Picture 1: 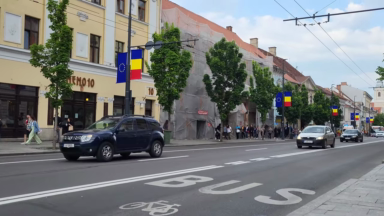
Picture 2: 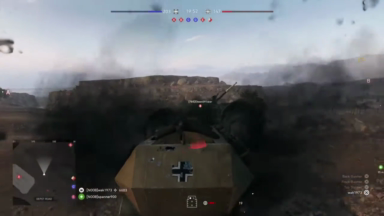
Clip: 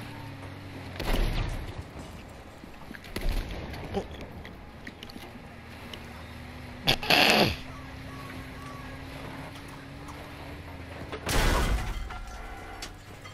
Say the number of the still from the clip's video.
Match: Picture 2